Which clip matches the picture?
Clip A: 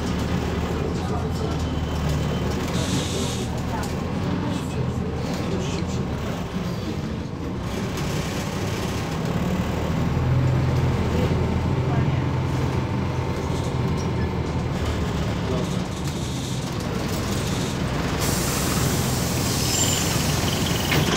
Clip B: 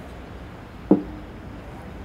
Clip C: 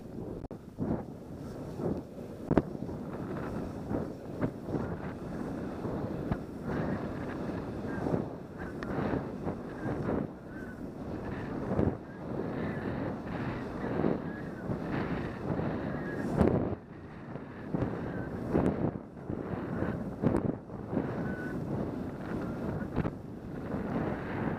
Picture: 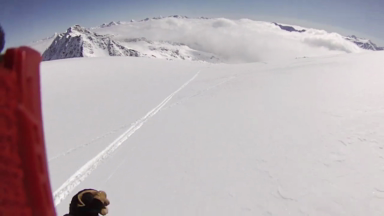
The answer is C